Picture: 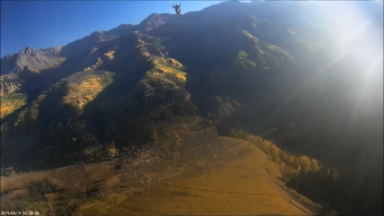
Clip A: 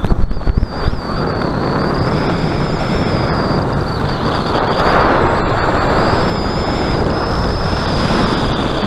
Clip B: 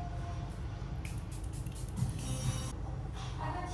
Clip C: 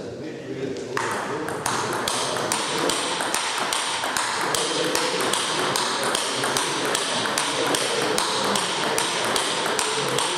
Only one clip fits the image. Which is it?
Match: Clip A